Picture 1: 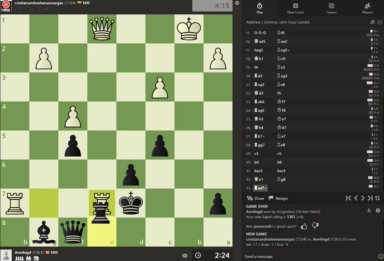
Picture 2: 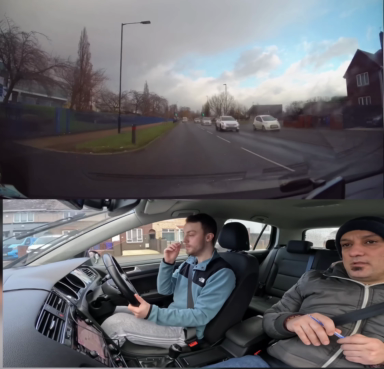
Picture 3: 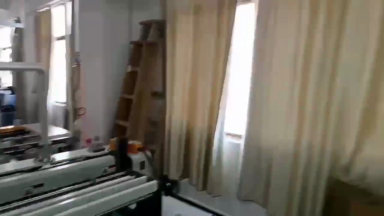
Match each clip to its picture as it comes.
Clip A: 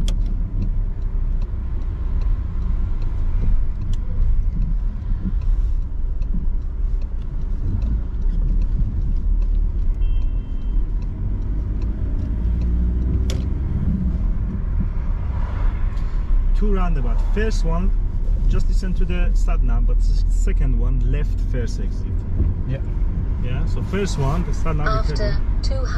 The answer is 2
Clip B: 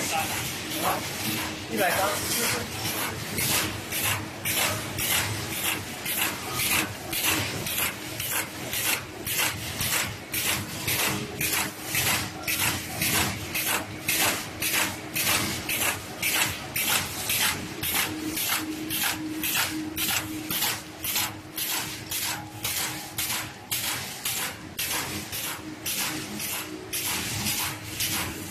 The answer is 3